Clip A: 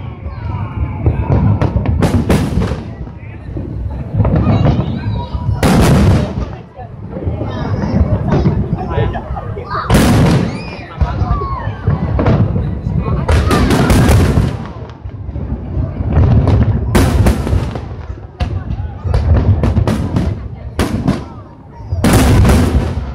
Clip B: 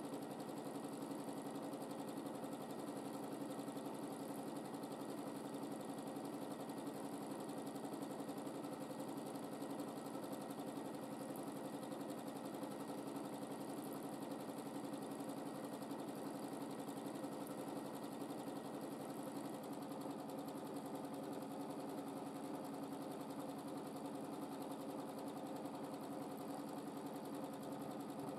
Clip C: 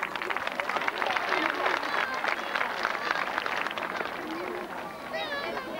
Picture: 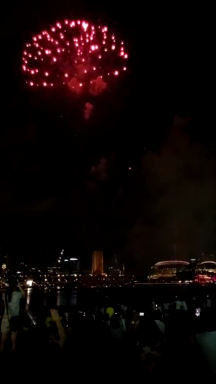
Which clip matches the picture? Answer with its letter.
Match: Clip A